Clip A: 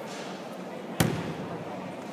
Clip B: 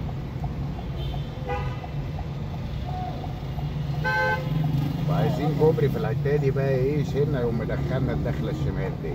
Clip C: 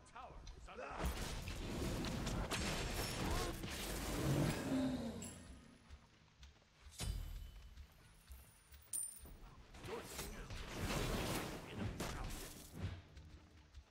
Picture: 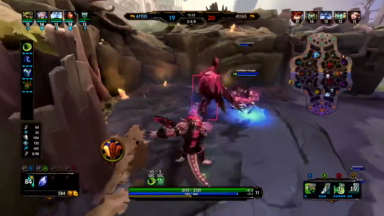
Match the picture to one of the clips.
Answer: C